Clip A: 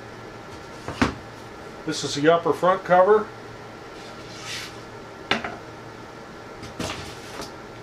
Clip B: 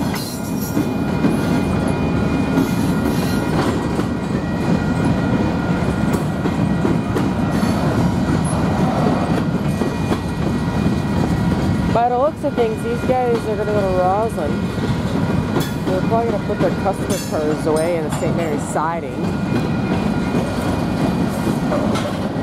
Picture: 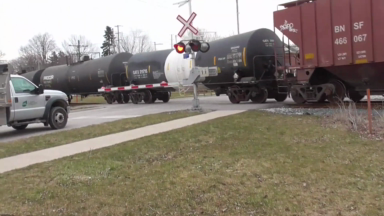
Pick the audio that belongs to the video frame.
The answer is B